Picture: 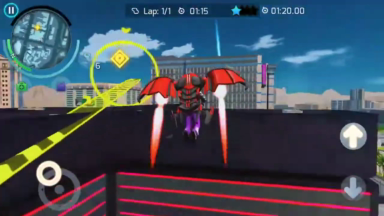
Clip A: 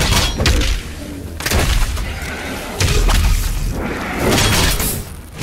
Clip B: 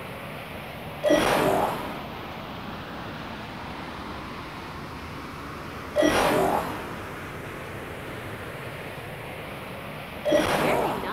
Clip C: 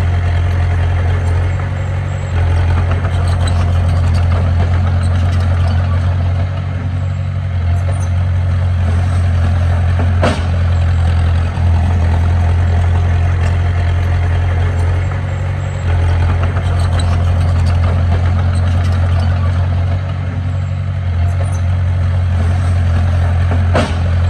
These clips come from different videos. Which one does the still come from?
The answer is B